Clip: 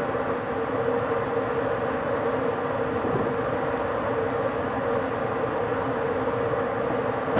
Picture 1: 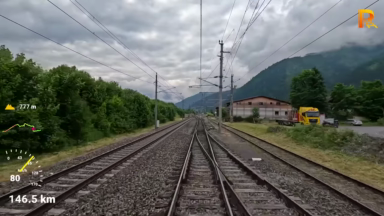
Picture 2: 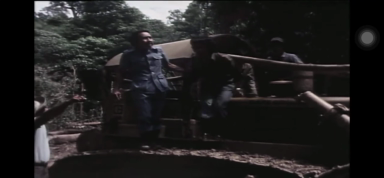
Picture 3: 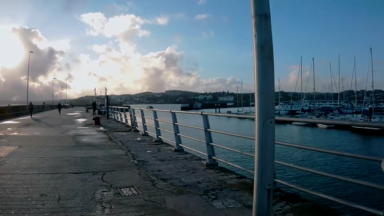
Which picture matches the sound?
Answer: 1